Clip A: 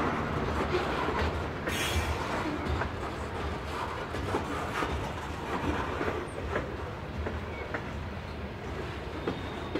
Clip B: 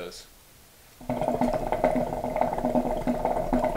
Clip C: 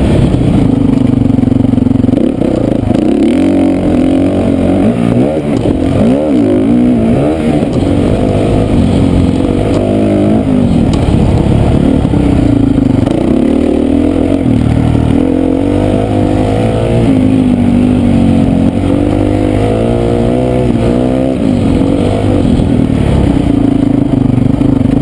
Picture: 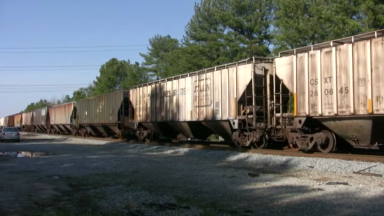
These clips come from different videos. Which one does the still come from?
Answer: A